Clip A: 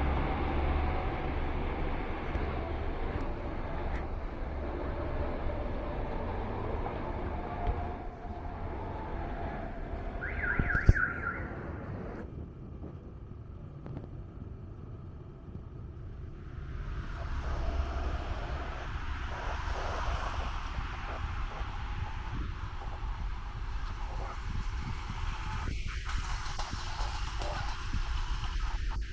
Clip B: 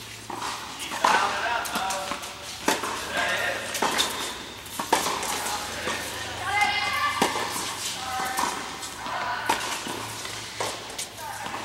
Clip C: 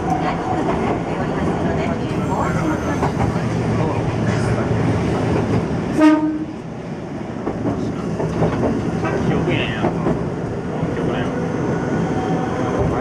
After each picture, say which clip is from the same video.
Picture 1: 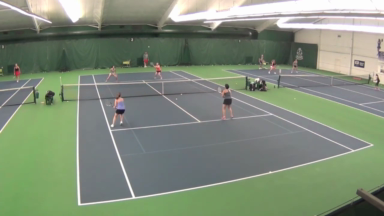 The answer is B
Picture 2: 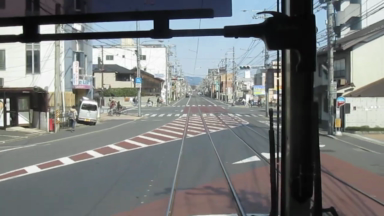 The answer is C